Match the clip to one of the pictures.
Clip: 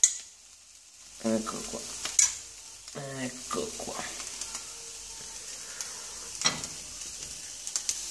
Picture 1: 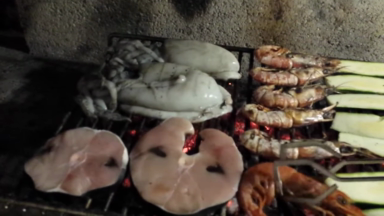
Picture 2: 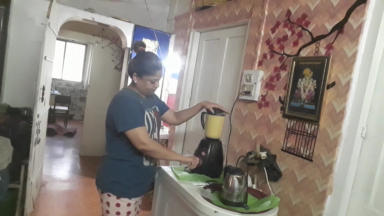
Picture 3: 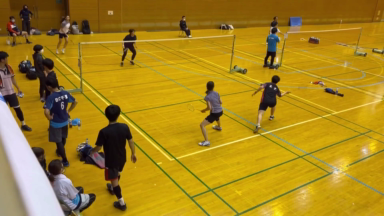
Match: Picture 1